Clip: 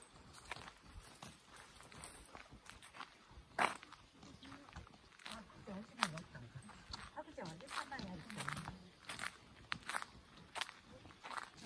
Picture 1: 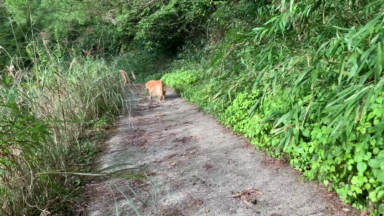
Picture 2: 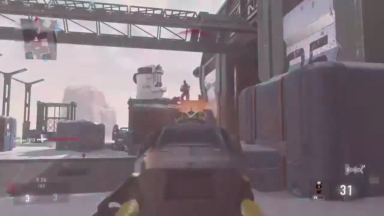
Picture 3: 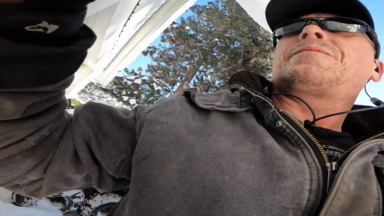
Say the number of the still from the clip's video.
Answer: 1